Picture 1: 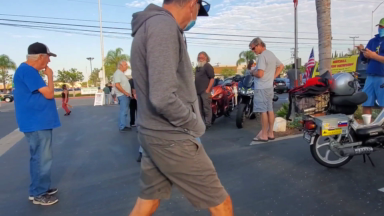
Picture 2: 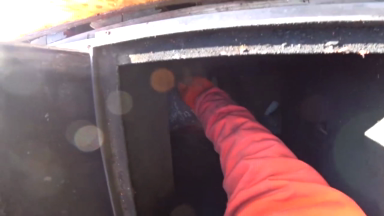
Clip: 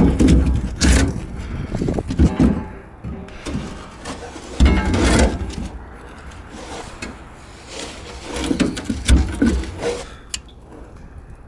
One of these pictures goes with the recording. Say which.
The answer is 2